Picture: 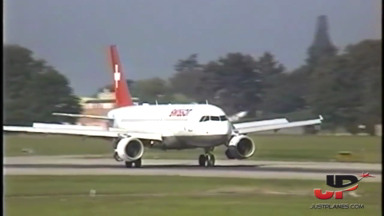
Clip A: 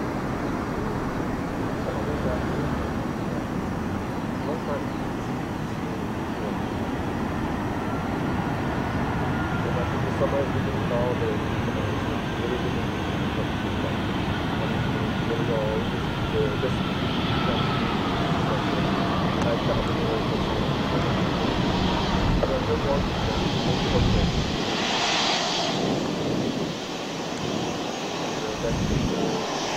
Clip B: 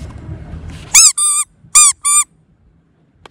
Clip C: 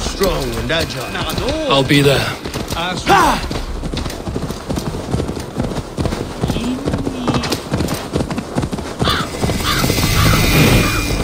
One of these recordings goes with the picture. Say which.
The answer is A